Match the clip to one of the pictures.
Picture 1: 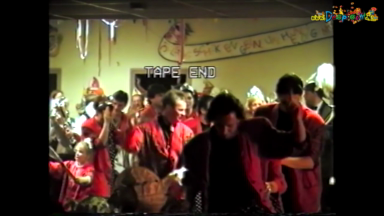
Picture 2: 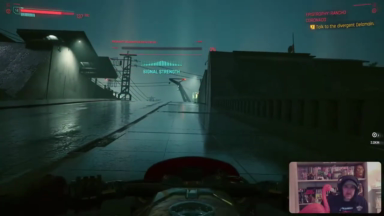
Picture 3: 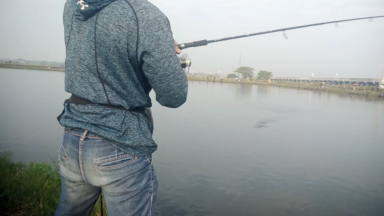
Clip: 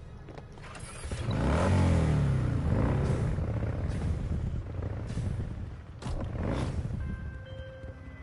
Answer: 2